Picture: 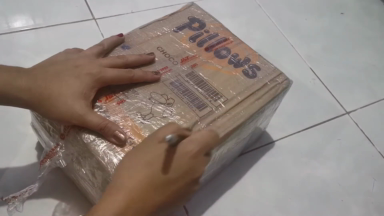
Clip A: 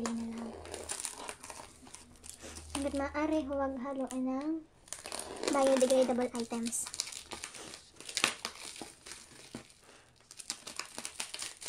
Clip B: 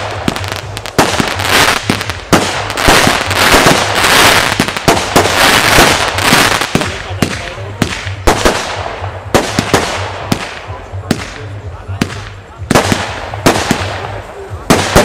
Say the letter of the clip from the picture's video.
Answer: A